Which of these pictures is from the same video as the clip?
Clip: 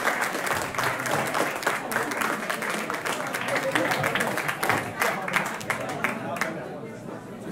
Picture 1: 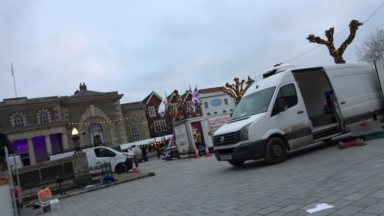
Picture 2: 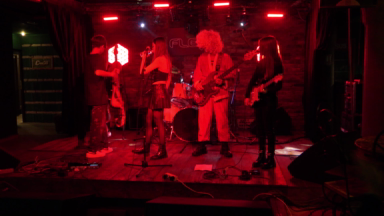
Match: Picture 2